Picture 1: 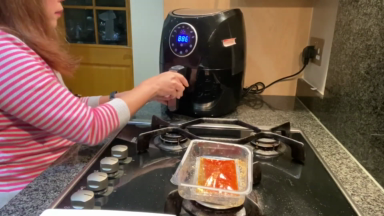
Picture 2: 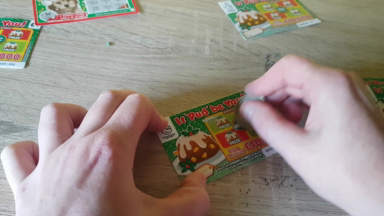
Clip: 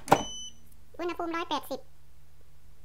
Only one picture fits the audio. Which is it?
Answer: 1